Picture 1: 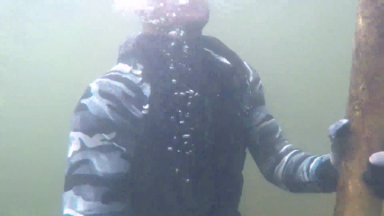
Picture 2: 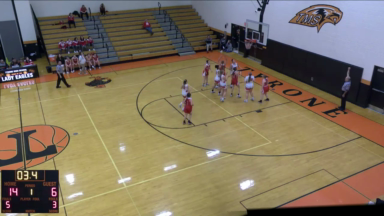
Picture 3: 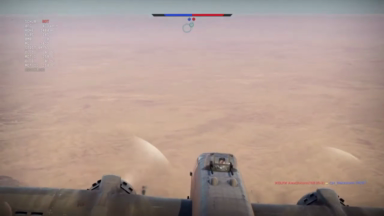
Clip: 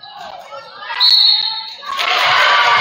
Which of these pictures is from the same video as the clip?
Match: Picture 2